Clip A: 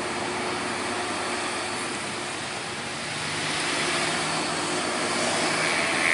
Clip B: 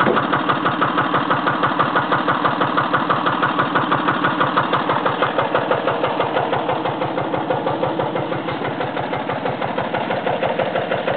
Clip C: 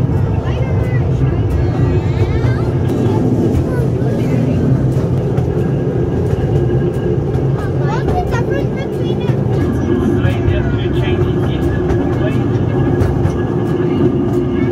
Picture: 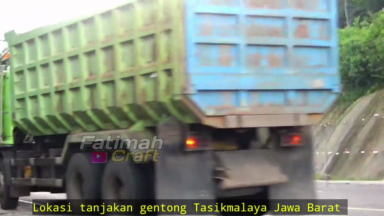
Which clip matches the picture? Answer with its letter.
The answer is A